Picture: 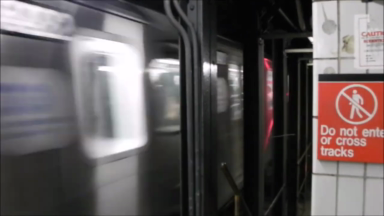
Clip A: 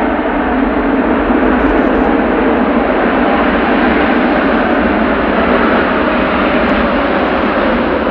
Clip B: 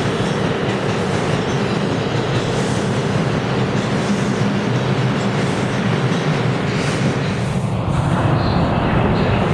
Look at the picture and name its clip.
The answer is B